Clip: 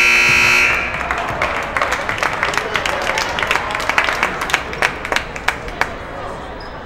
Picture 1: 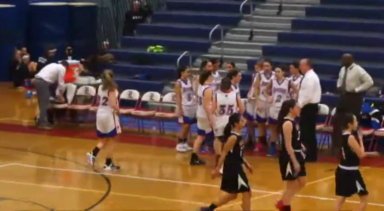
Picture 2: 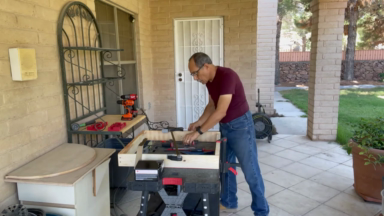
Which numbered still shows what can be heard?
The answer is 1